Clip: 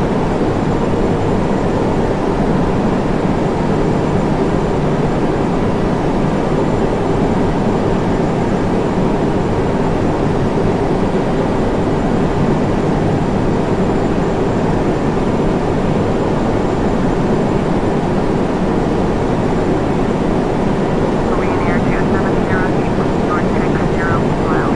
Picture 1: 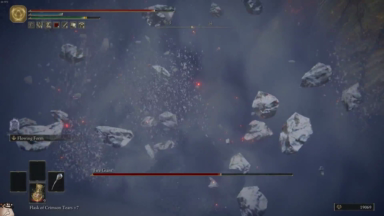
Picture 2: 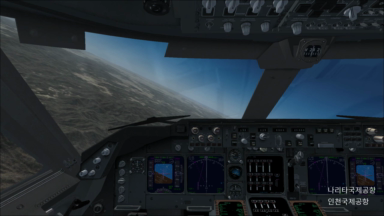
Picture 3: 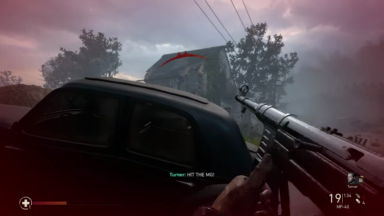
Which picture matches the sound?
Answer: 2